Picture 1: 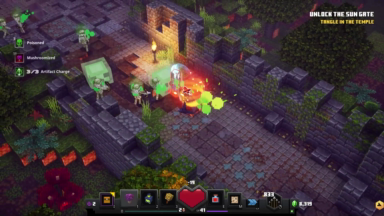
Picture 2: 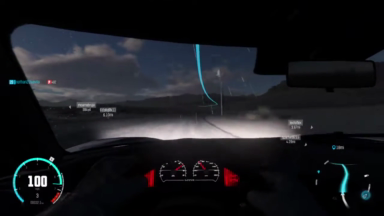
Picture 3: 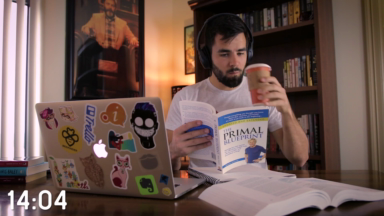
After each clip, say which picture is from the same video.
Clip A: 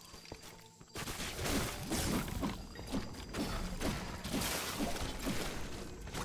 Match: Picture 1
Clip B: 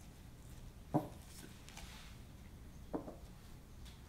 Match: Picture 3